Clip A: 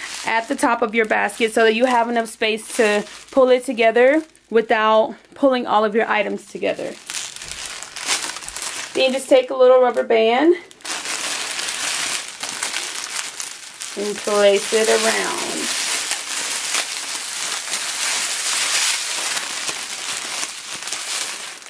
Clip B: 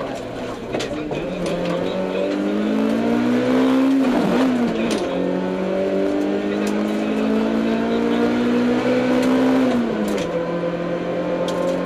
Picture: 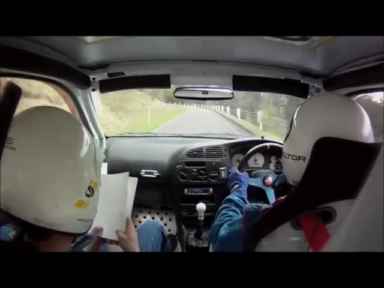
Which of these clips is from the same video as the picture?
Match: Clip B